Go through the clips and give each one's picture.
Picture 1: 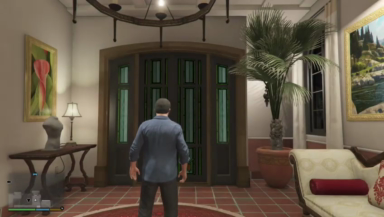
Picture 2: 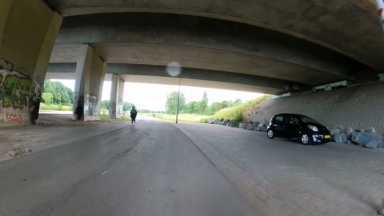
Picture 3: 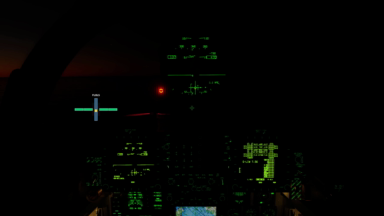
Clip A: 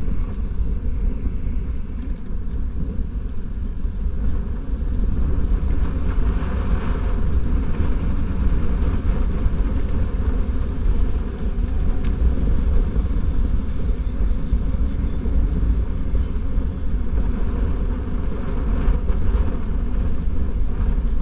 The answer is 2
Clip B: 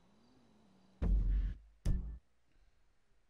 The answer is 1